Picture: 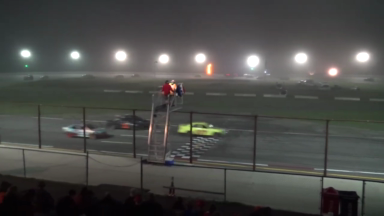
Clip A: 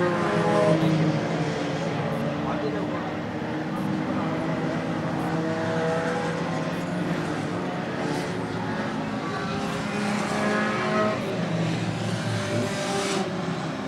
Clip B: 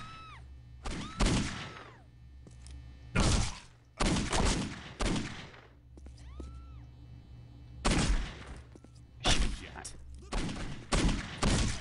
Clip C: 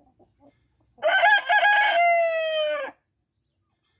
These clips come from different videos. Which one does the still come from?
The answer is A